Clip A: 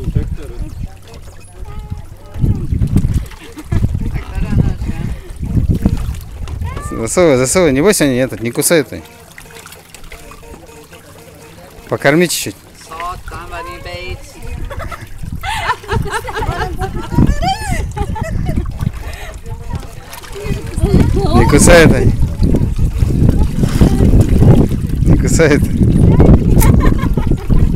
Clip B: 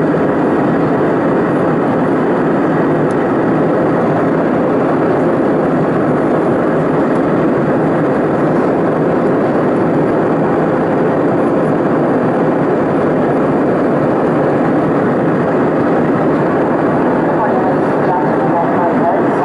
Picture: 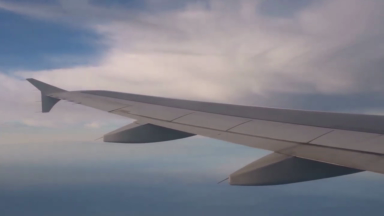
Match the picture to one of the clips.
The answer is B